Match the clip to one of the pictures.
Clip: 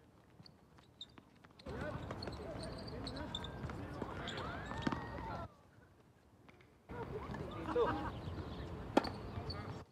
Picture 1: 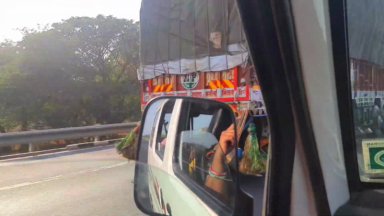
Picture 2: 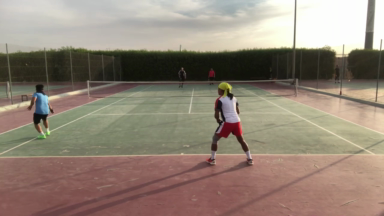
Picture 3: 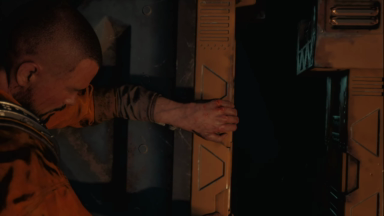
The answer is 2